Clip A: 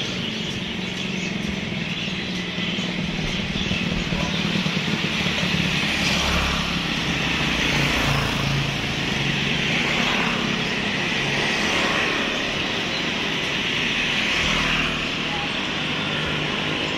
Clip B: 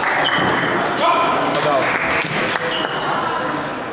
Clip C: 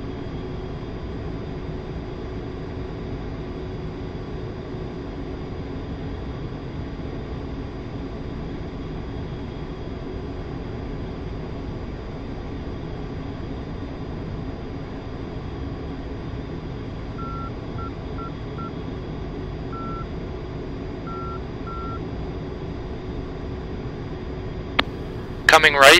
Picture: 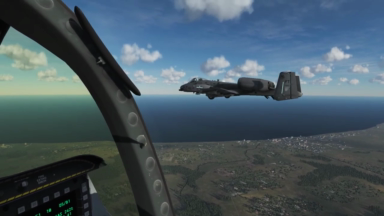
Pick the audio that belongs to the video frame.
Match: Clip C